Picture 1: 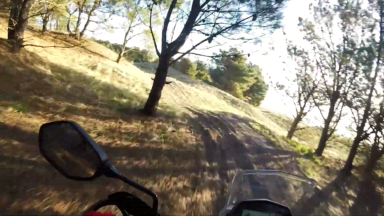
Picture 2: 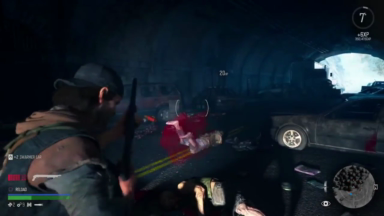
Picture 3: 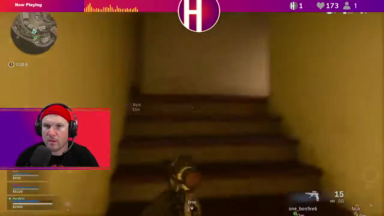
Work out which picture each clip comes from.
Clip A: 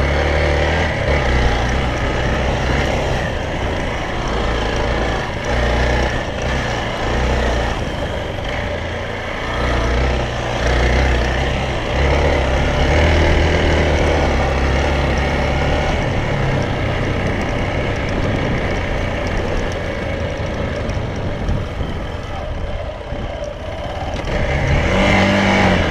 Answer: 1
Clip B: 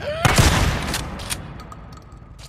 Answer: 2